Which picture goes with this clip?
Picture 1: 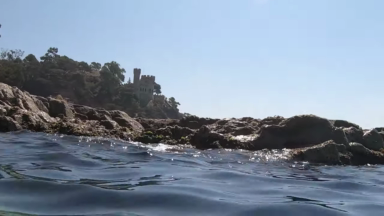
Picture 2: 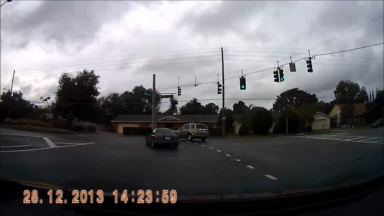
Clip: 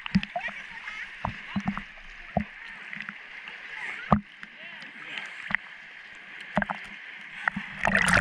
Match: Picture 1